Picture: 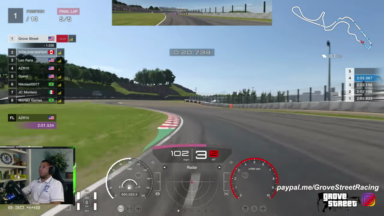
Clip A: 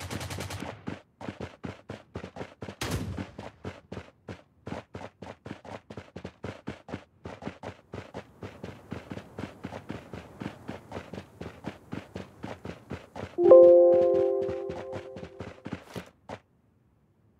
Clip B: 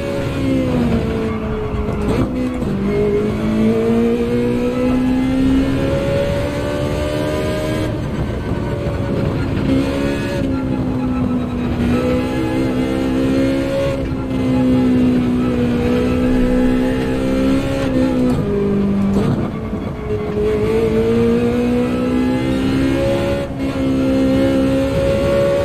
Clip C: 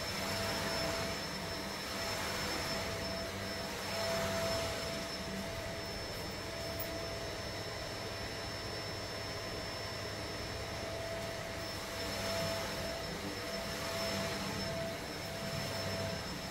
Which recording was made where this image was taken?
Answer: B